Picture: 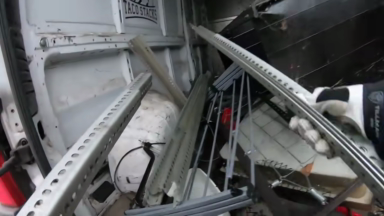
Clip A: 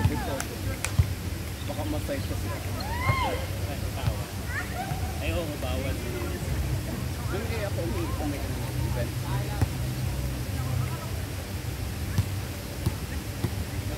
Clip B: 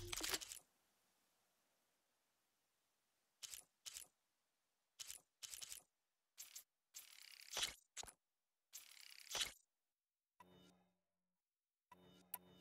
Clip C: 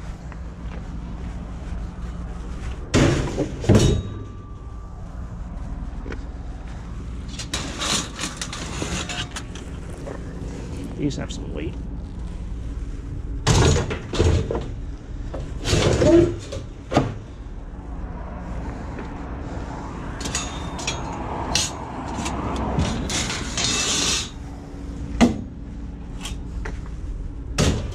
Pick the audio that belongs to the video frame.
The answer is C